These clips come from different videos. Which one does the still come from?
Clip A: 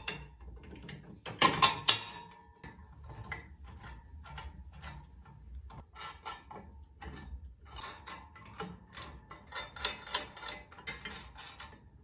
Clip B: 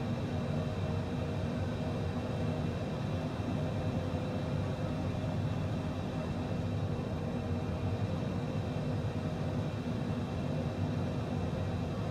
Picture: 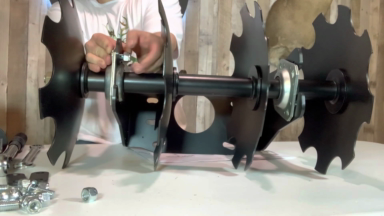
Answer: A